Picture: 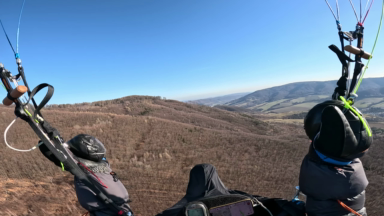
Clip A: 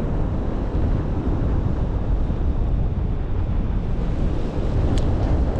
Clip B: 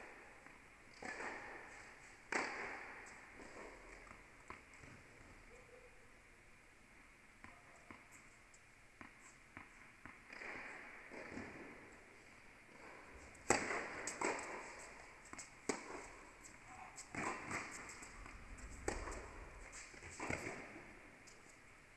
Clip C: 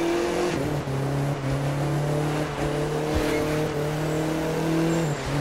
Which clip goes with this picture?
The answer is A